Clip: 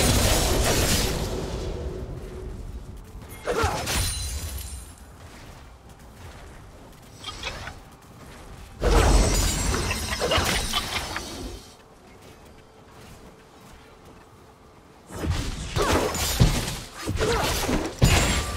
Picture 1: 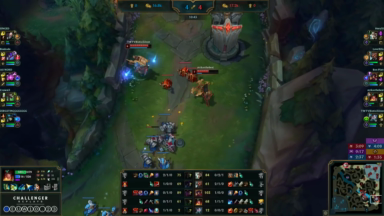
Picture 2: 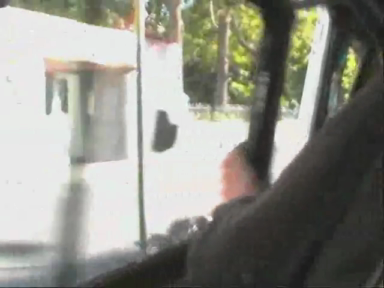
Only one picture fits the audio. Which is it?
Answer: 1